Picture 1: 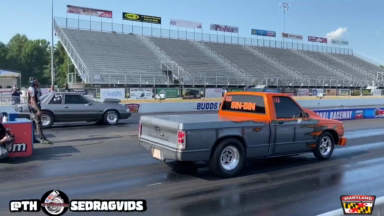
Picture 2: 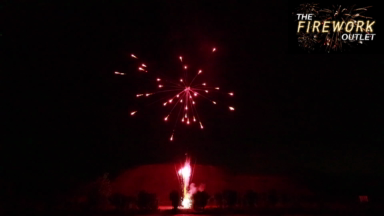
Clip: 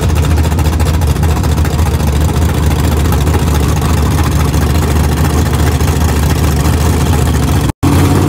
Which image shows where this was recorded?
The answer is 1